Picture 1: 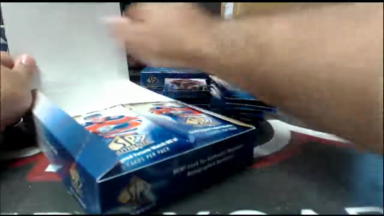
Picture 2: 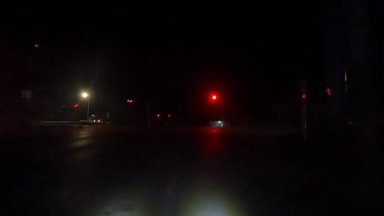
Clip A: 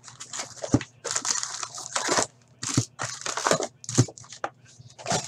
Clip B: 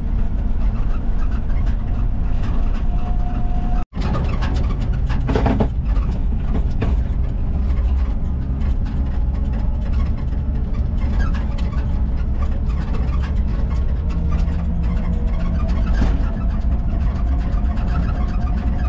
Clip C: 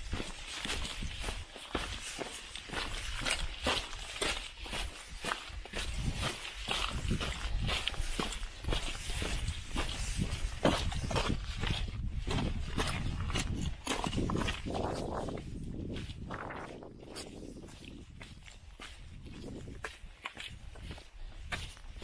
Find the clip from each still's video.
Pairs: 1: A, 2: B